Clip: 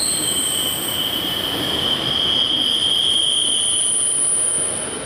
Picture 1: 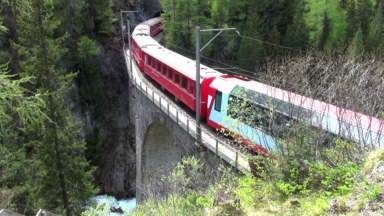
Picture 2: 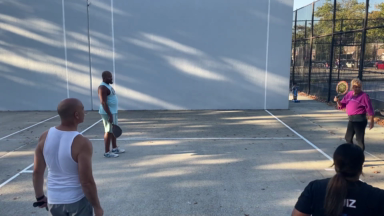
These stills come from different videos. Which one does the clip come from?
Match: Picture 1